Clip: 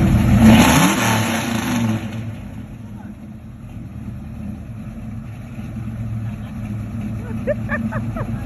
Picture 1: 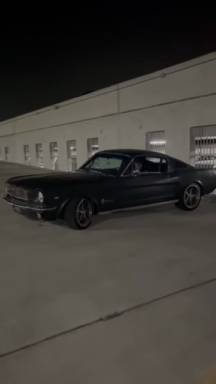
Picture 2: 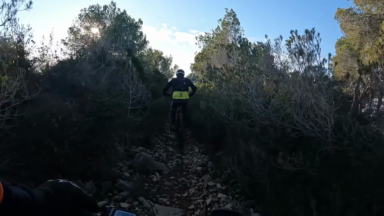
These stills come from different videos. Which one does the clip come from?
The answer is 1